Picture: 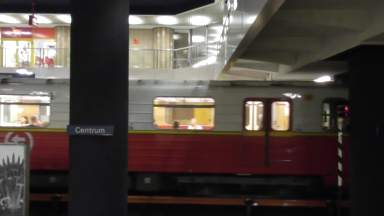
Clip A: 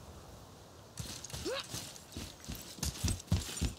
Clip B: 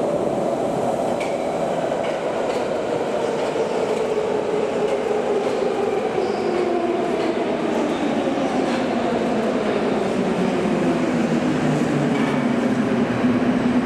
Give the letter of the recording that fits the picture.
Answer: B